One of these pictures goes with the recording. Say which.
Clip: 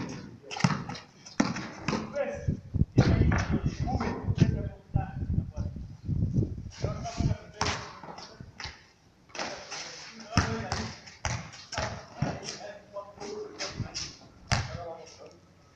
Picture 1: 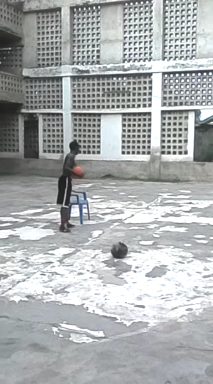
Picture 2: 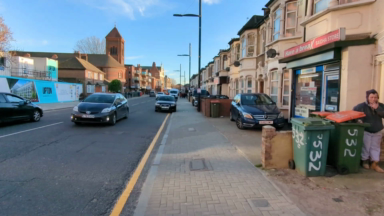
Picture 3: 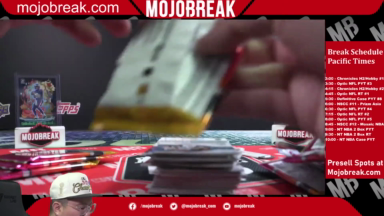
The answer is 1